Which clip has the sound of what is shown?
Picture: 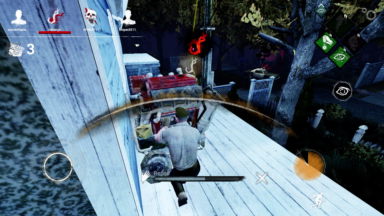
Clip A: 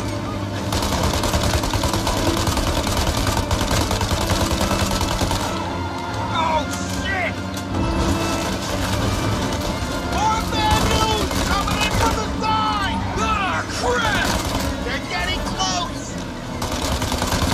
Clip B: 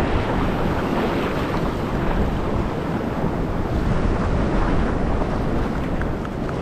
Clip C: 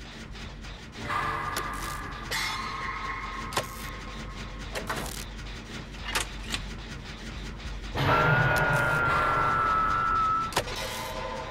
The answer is C